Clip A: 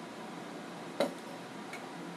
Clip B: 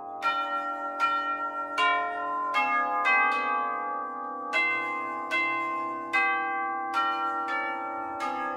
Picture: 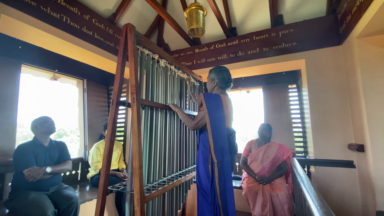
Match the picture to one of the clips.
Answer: B